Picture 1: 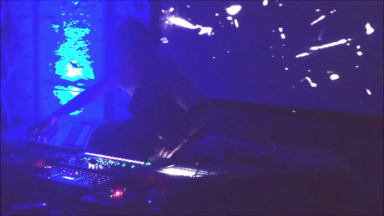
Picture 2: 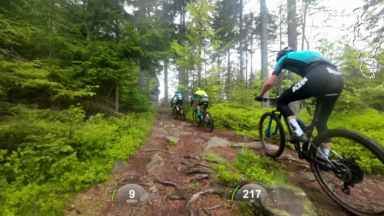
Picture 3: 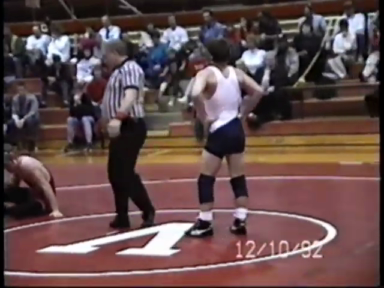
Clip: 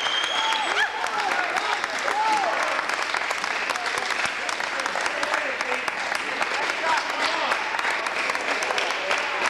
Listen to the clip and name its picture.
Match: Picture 3